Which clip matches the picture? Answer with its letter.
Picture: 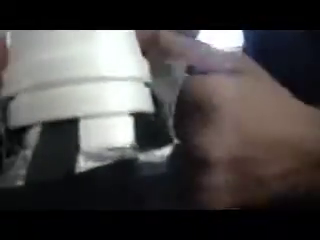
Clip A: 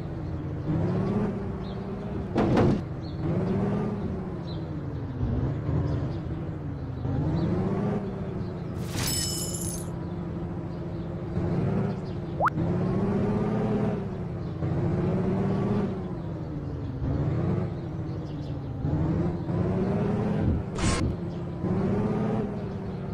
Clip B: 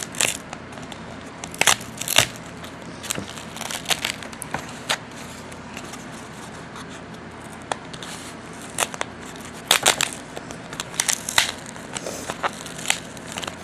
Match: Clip B